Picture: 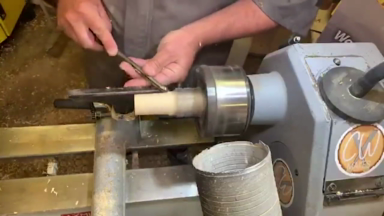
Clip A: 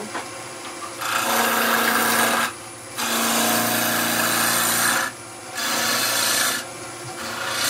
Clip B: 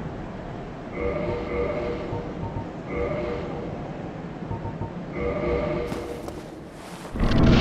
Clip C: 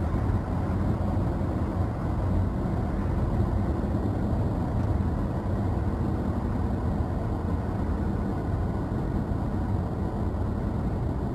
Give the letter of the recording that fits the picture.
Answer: A